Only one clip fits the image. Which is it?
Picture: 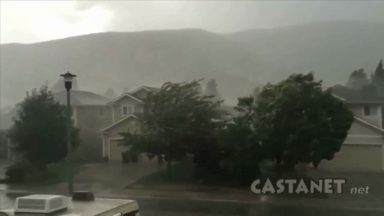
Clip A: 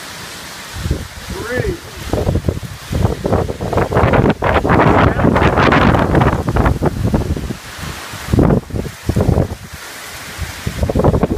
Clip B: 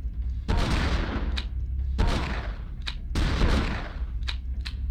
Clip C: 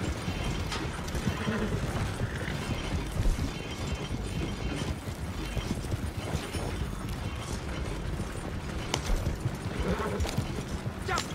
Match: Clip A